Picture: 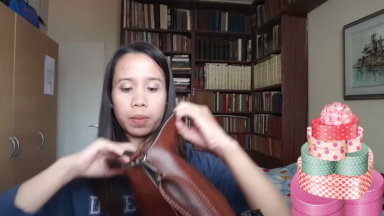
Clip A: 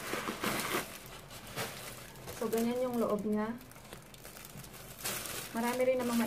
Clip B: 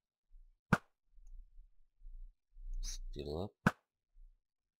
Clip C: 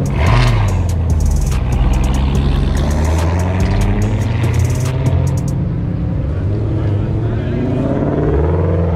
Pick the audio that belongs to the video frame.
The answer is A